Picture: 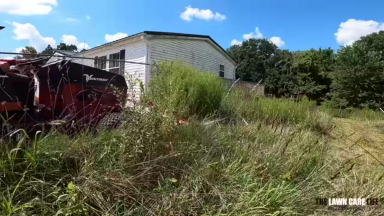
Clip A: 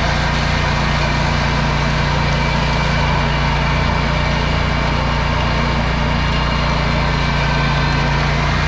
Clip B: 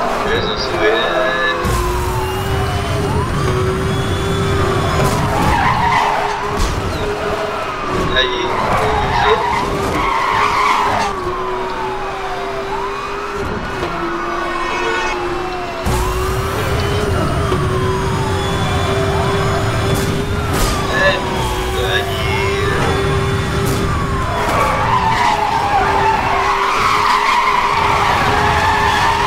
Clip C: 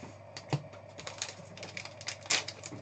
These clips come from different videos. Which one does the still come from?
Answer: A